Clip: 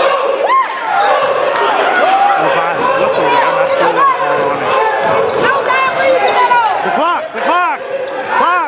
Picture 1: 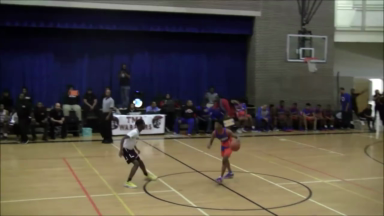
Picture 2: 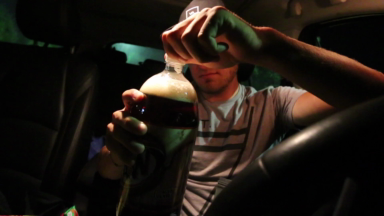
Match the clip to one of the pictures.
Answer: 1